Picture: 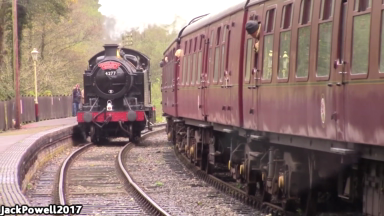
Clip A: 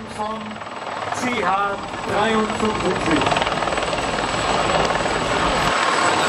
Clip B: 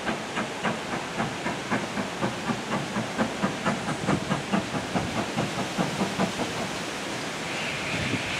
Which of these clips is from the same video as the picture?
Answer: B